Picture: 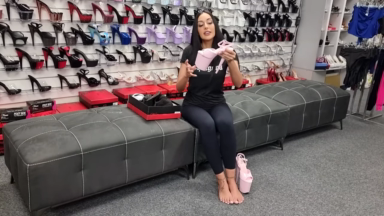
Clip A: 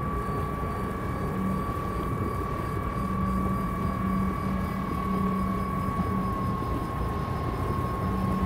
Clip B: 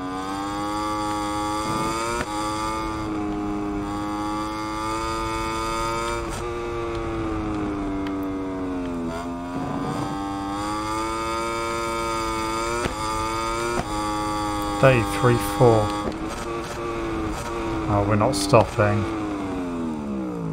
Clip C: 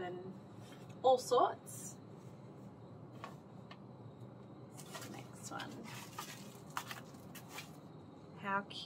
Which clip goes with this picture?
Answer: C